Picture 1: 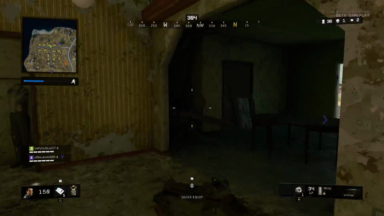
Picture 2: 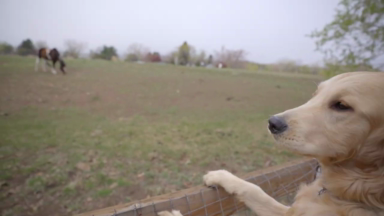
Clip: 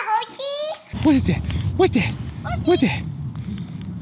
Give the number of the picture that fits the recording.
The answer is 2